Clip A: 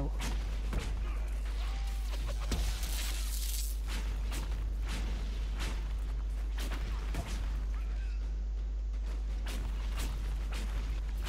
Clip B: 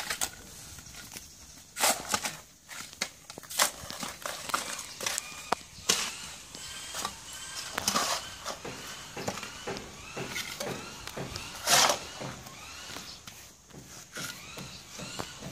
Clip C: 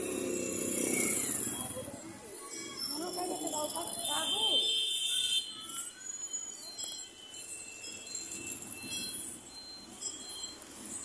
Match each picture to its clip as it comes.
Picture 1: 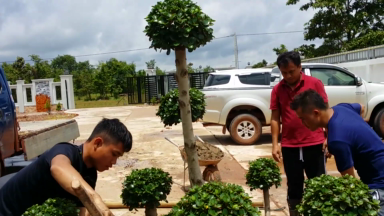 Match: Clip B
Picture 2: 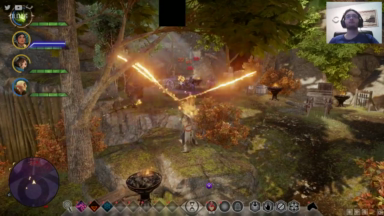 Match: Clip A